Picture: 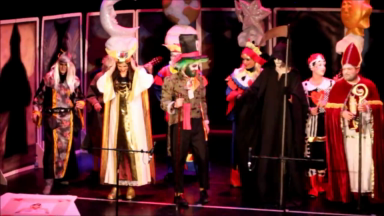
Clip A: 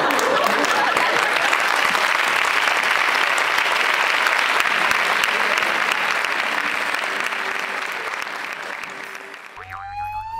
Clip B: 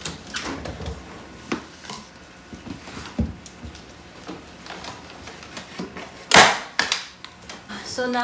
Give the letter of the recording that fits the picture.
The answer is A